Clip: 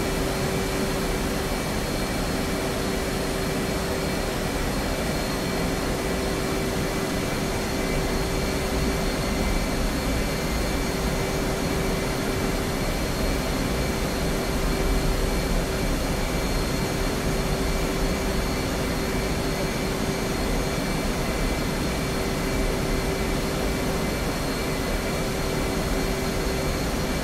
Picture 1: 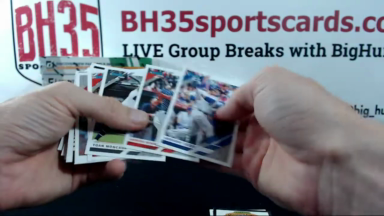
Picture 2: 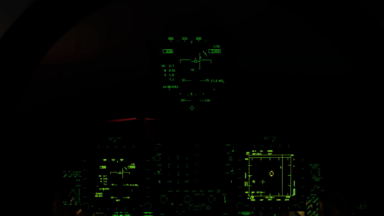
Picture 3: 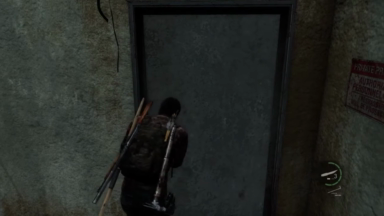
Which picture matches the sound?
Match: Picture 2